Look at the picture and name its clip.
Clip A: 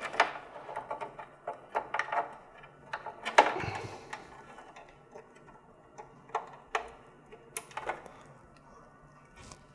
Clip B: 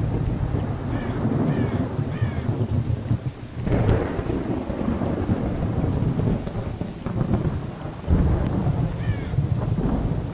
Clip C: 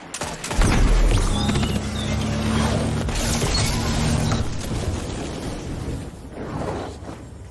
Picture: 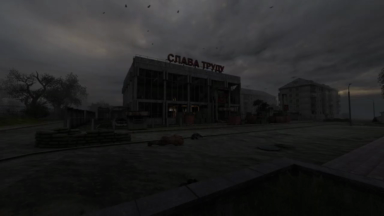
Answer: B